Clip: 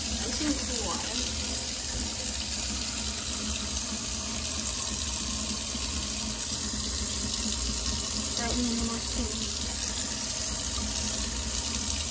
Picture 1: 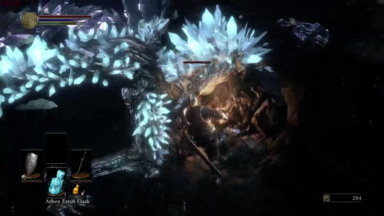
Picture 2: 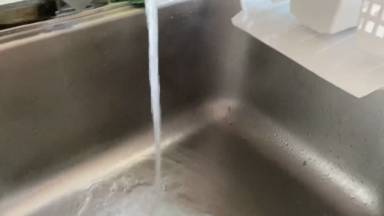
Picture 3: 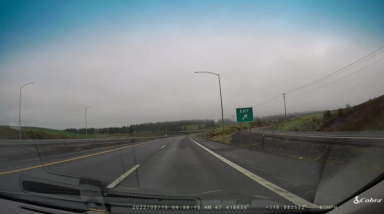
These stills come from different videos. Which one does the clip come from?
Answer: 2